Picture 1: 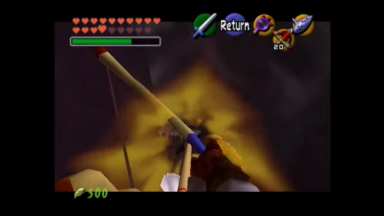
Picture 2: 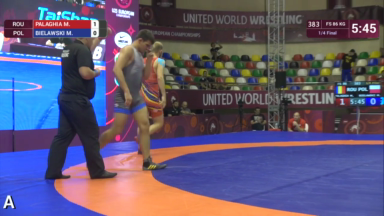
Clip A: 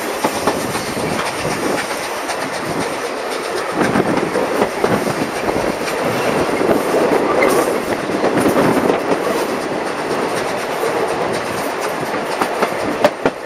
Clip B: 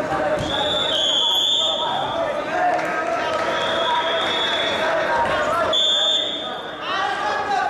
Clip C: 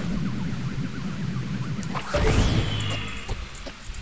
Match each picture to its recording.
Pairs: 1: C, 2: B